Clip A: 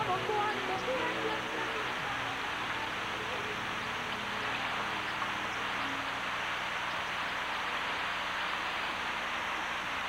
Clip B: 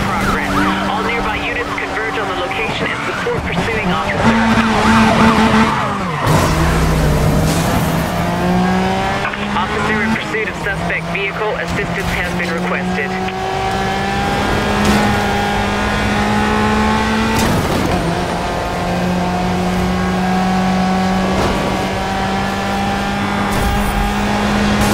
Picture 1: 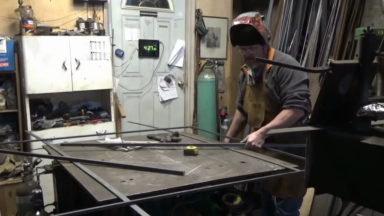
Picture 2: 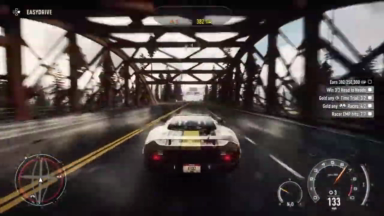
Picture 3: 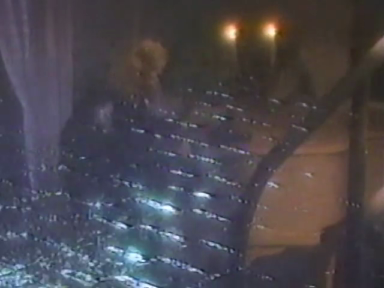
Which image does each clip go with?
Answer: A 3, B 2